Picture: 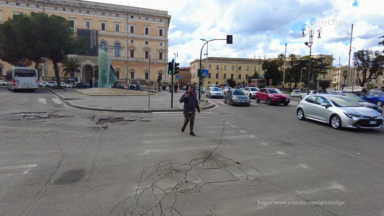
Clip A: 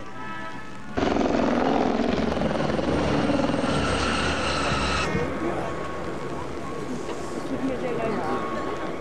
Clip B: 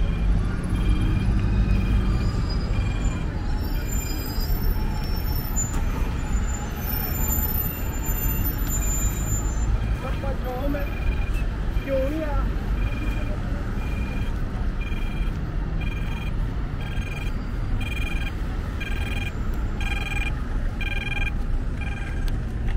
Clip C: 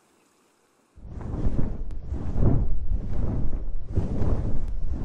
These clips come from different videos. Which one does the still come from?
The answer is B